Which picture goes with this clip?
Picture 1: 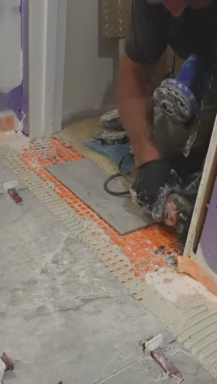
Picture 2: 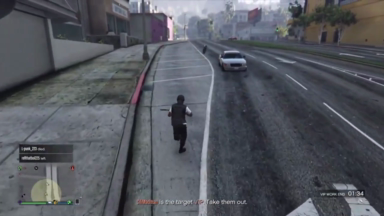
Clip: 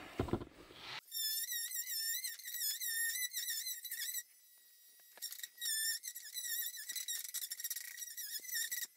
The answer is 1